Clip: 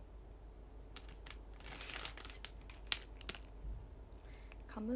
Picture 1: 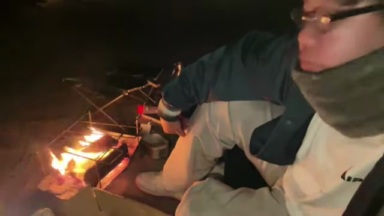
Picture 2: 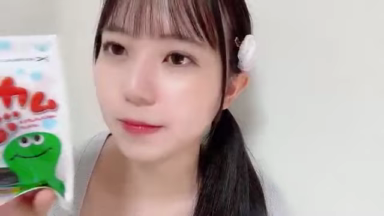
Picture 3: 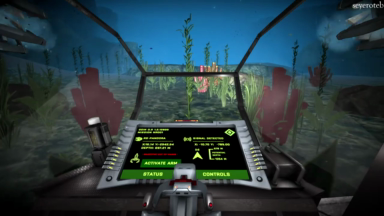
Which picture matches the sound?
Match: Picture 2